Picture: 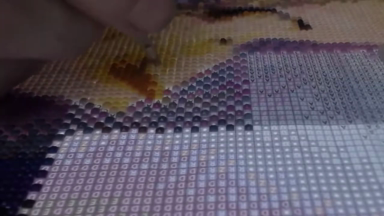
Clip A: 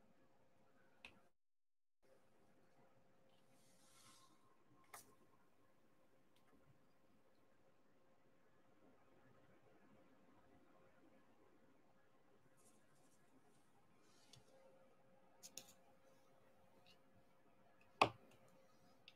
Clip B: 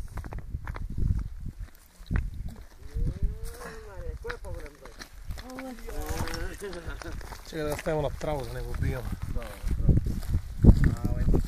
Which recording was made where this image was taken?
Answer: A